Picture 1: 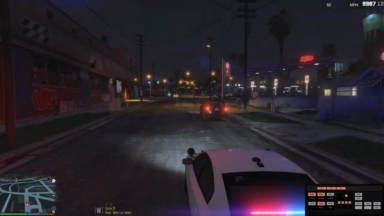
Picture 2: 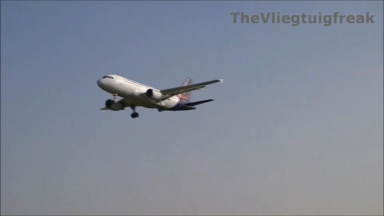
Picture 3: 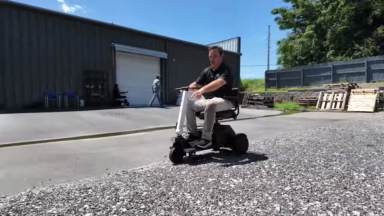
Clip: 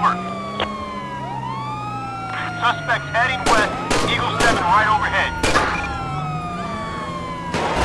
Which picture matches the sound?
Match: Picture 1